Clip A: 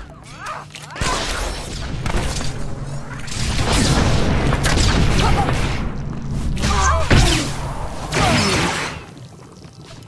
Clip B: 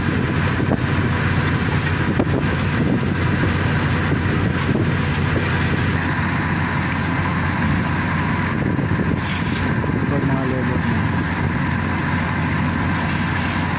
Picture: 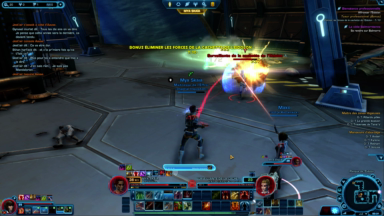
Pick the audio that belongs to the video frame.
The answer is A